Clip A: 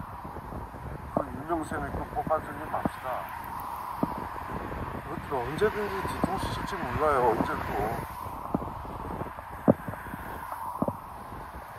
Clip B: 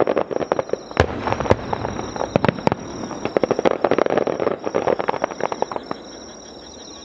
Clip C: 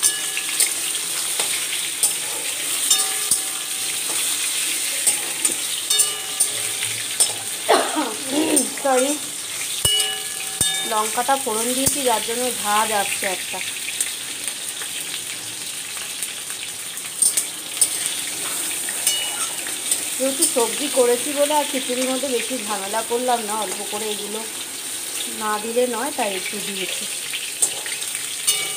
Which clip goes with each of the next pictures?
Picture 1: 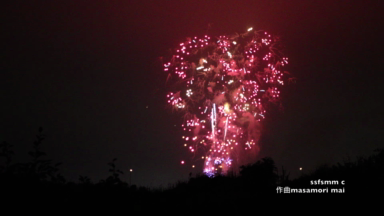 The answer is B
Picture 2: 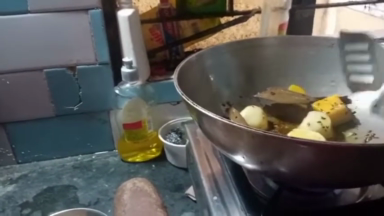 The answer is C